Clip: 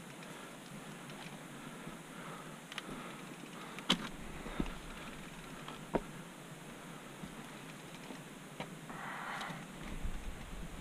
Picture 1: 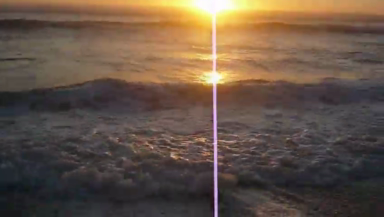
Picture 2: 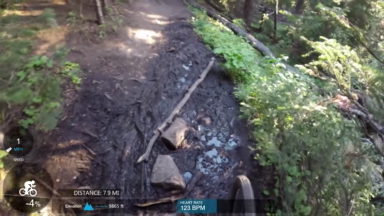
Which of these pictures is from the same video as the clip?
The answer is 2